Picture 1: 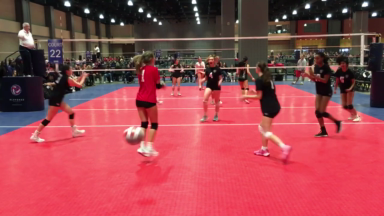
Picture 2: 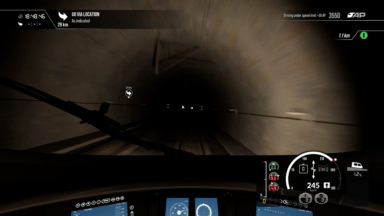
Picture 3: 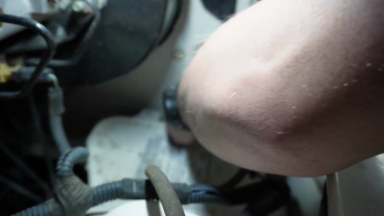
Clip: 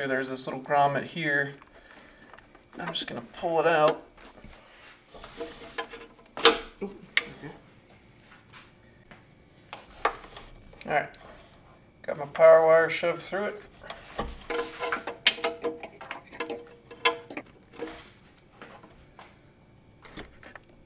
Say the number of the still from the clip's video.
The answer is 3